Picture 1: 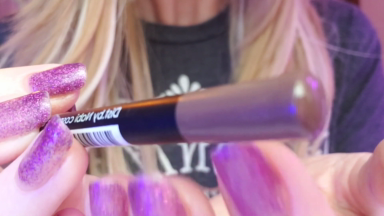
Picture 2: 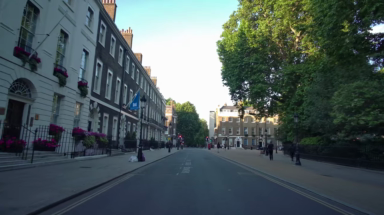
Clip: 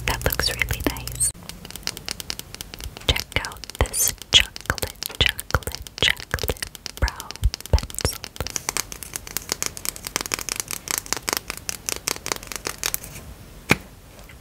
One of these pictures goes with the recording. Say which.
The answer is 1